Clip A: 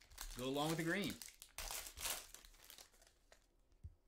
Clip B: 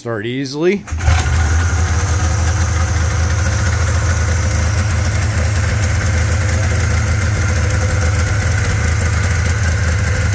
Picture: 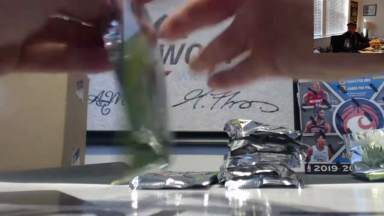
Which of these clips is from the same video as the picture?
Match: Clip A